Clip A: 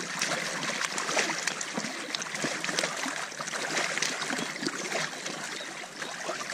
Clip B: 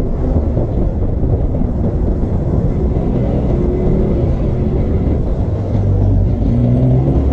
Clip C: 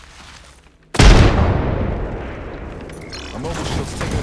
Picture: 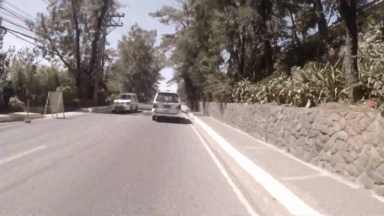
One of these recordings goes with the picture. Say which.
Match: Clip B